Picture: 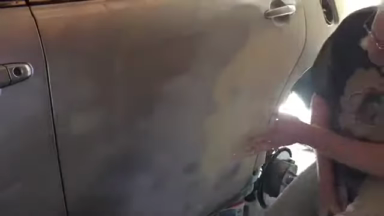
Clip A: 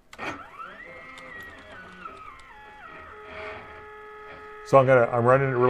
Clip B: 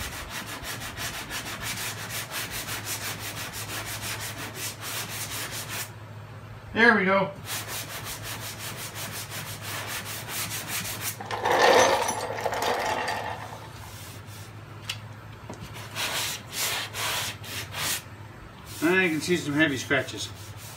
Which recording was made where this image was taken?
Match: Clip B